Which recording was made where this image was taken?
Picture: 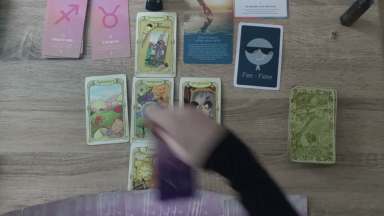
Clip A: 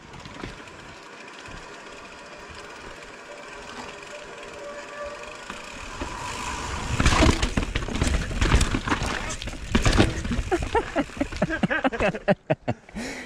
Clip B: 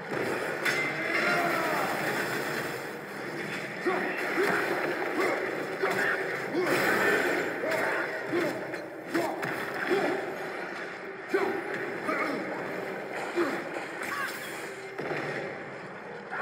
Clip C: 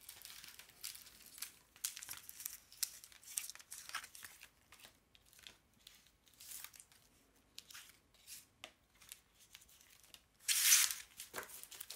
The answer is C